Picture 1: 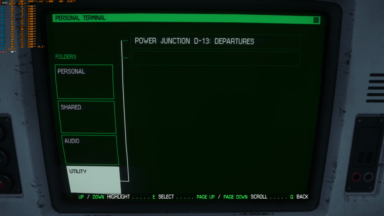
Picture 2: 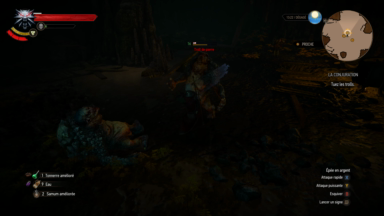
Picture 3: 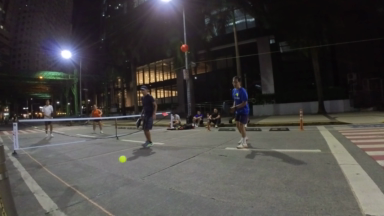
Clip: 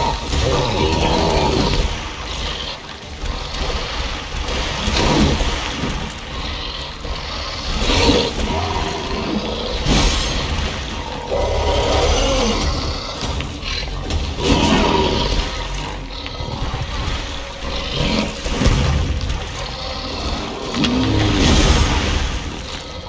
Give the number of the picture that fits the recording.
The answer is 2